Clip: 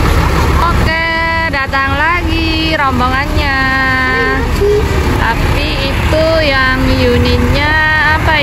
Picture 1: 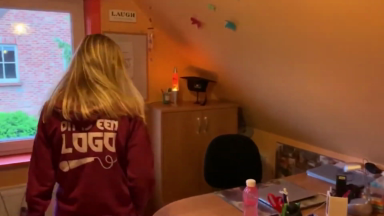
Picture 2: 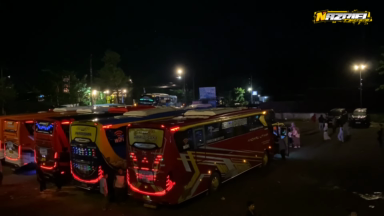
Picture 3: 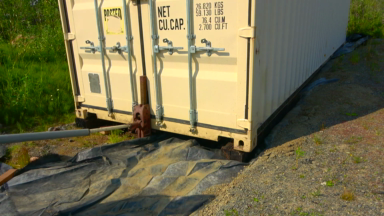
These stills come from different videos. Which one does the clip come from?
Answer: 2